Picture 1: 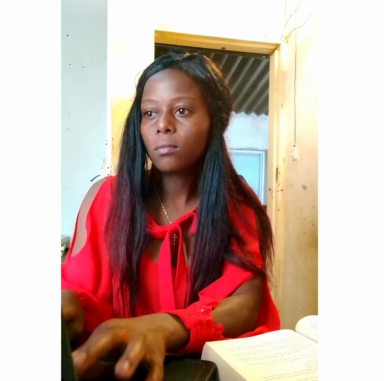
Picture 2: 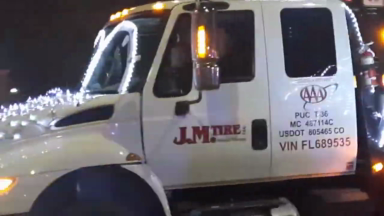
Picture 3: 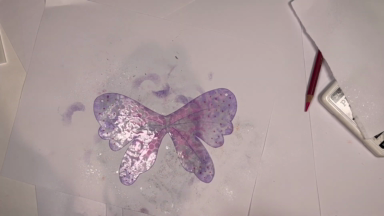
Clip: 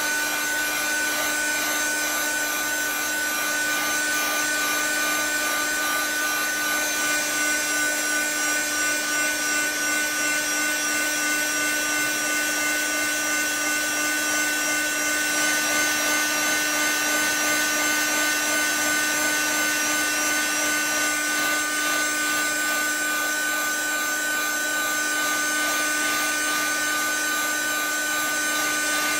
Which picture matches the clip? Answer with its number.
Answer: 3